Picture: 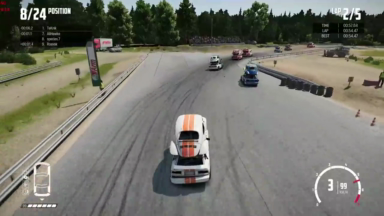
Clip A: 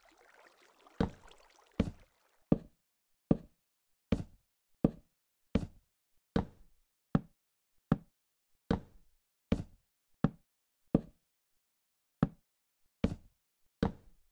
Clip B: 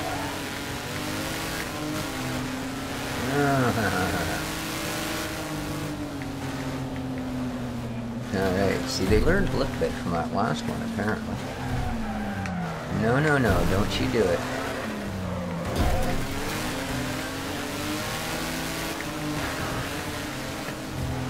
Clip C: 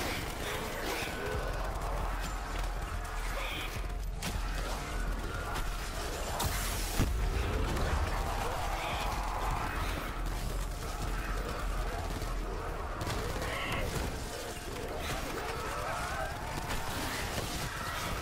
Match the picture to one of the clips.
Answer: B